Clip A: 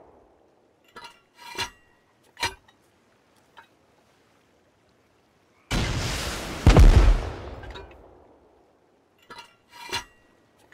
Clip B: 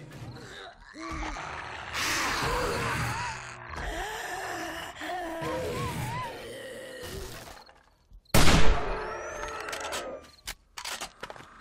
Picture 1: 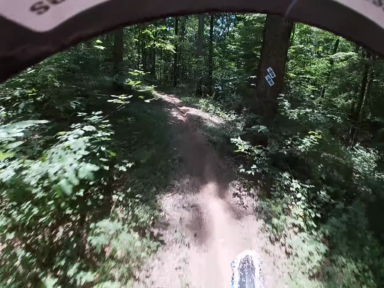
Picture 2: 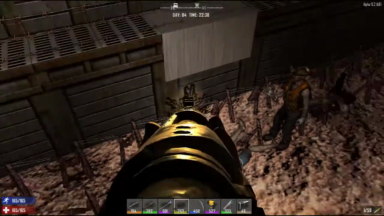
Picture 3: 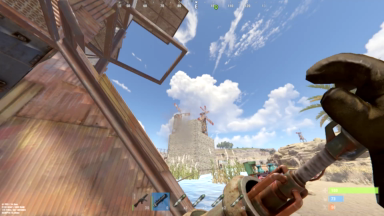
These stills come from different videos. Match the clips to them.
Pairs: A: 3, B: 2